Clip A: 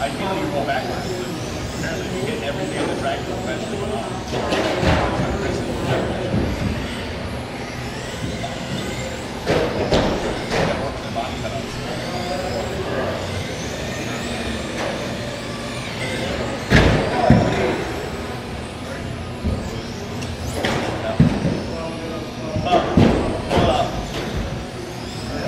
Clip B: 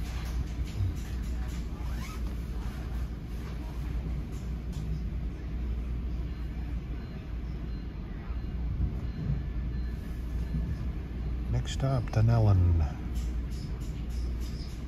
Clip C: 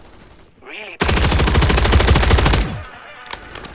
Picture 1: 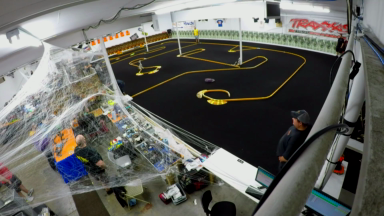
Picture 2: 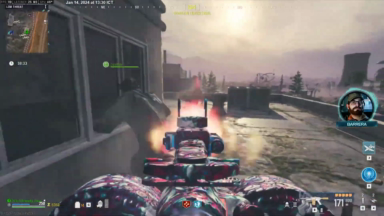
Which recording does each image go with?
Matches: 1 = A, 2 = C